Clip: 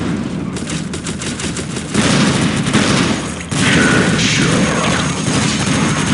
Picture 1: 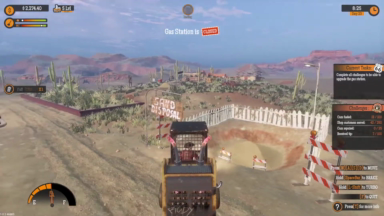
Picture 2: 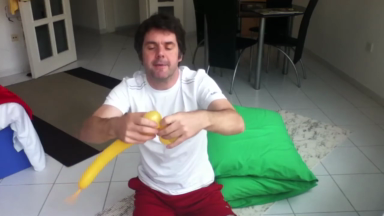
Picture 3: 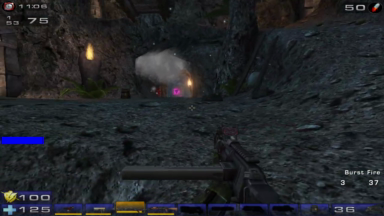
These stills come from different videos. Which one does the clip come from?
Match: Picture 3